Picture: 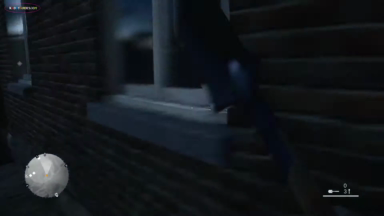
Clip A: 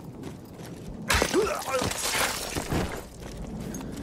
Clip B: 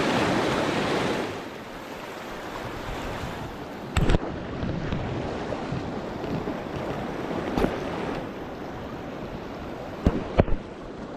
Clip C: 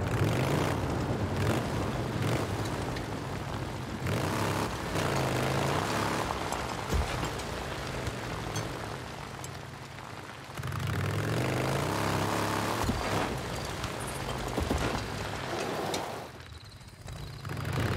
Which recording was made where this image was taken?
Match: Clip A